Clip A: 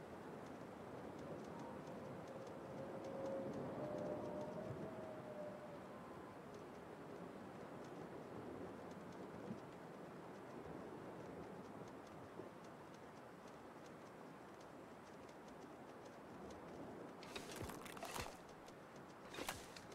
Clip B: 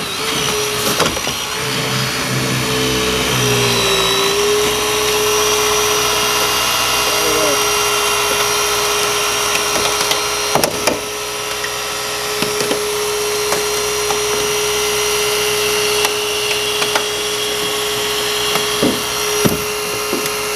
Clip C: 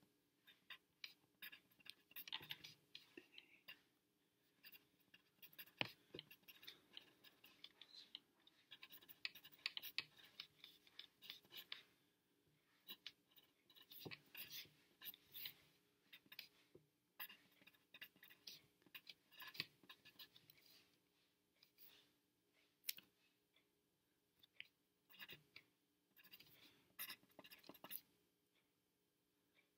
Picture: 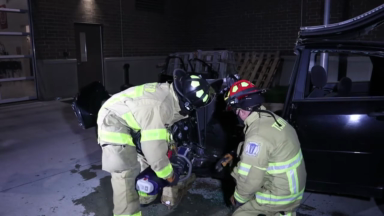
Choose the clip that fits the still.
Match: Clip B